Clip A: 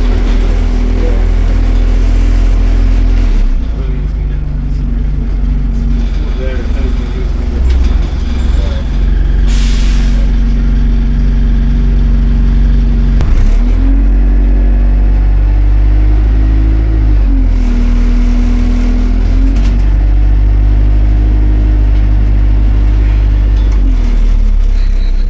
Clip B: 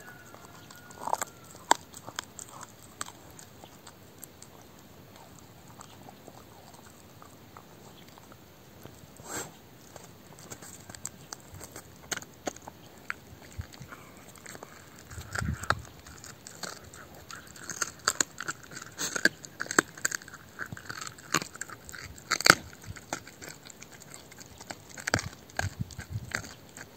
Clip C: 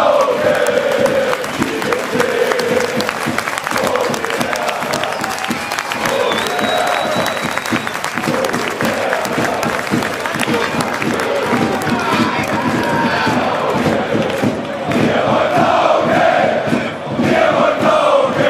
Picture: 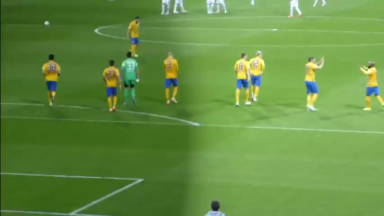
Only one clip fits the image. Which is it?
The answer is C